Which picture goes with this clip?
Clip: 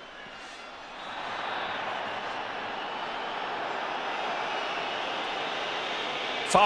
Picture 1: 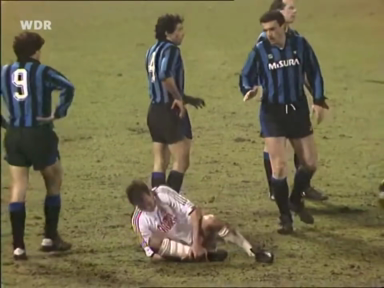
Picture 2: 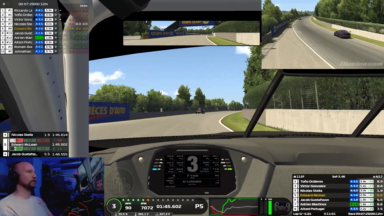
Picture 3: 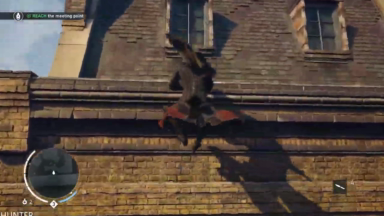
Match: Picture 1